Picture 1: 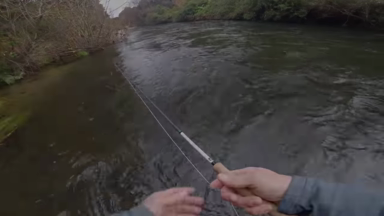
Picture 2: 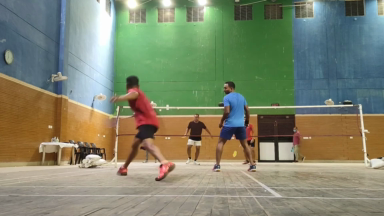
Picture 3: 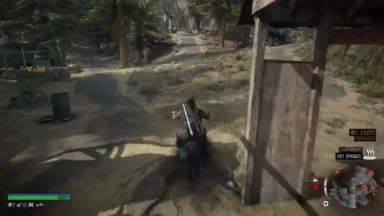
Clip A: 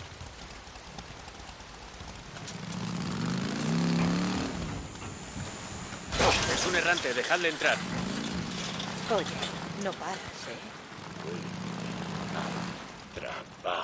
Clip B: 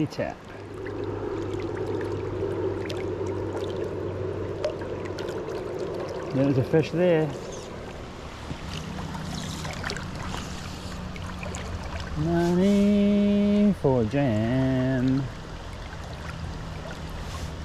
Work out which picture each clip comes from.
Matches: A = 3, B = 1